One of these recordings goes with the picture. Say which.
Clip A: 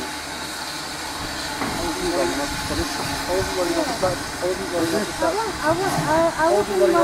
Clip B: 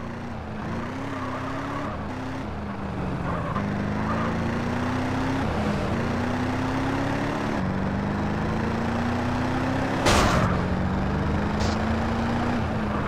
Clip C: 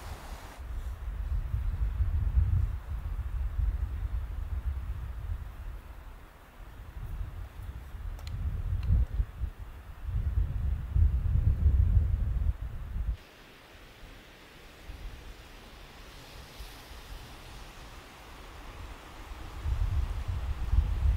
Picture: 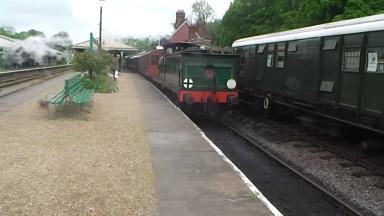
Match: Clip A